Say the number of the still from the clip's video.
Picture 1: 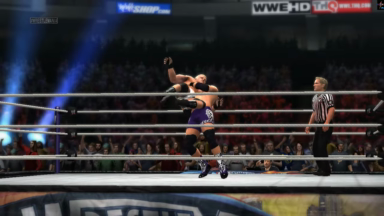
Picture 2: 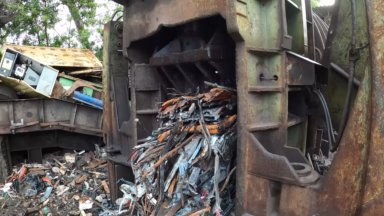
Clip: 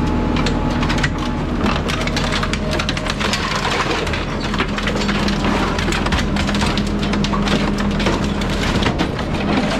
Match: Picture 2